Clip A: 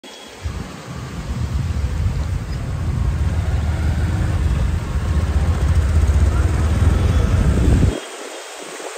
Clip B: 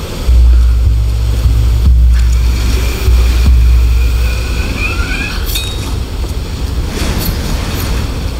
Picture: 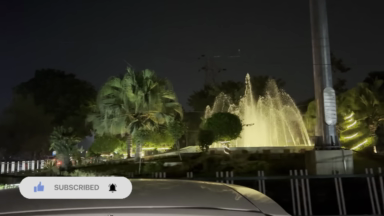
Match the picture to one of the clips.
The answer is A